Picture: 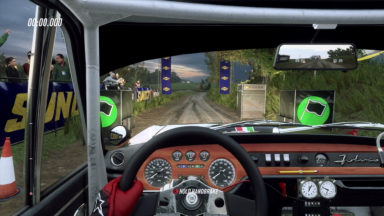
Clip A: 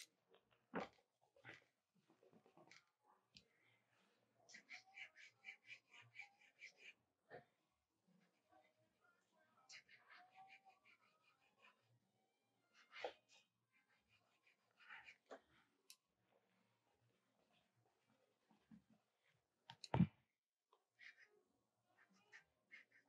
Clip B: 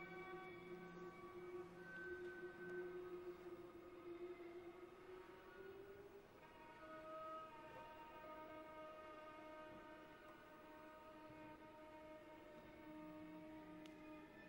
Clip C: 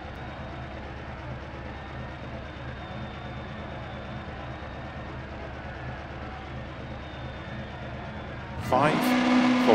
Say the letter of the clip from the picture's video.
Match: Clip C